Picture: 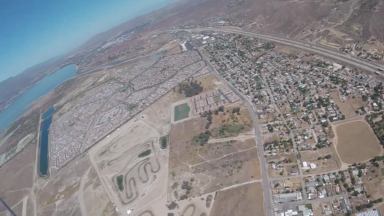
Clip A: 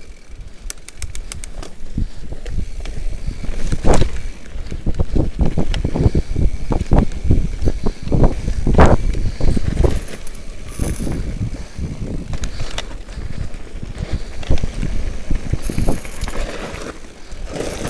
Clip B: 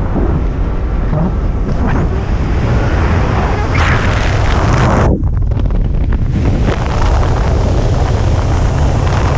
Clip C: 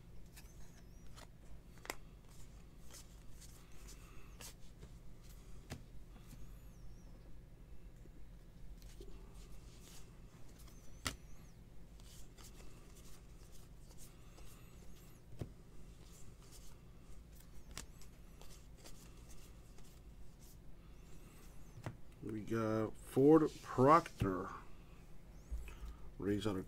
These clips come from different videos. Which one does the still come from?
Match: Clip B